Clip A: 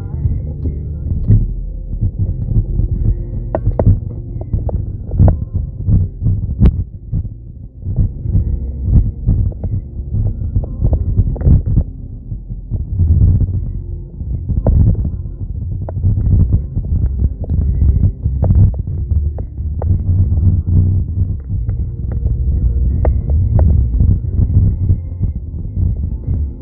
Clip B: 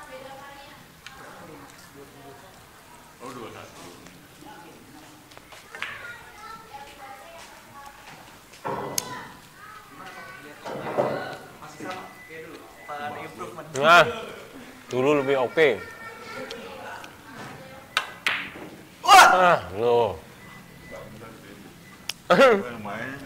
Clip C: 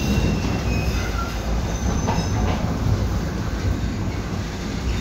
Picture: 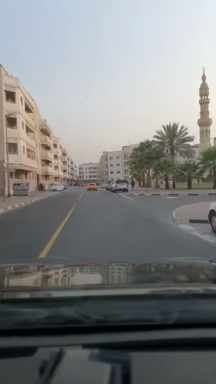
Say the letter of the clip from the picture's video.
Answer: A